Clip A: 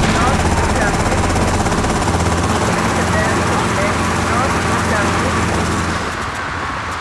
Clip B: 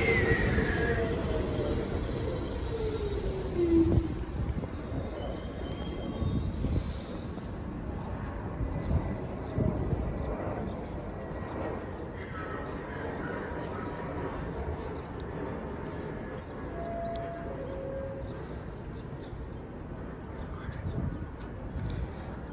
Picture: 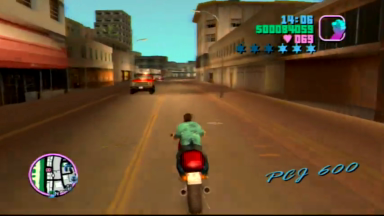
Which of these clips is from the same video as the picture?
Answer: A